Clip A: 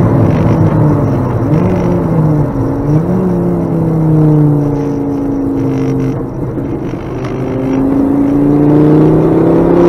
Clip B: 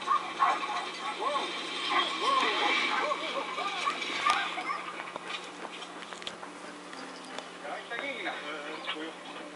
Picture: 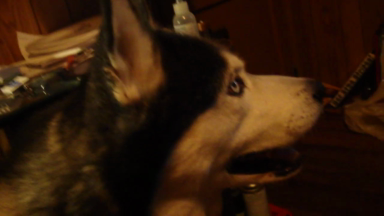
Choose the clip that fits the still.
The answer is B